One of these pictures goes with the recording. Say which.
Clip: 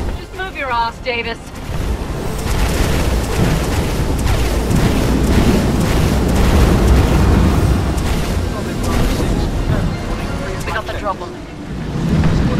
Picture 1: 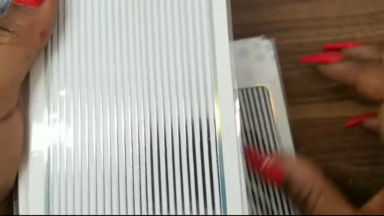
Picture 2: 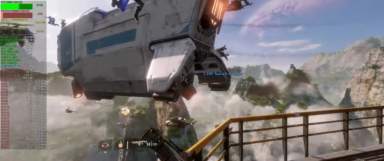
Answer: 2